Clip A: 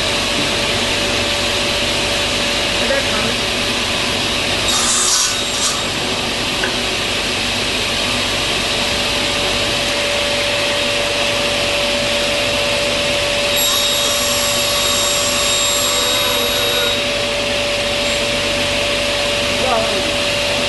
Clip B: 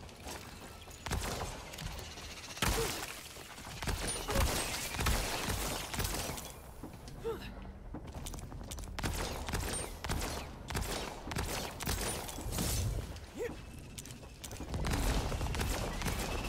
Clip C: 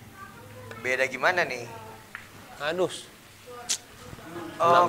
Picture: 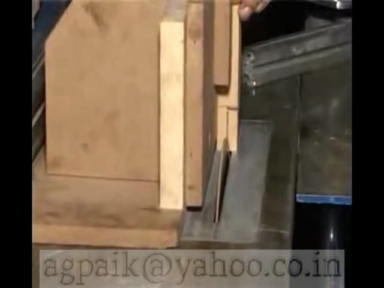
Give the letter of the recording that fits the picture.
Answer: A